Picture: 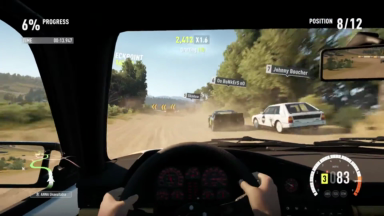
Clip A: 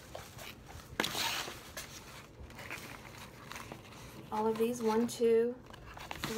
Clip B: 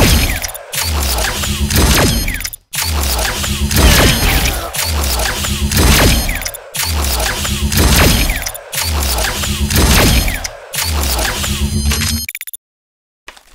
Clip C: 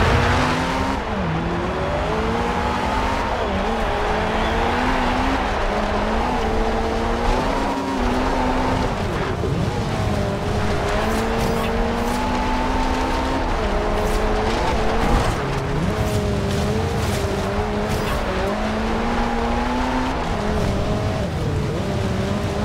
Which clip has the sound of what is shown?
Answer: C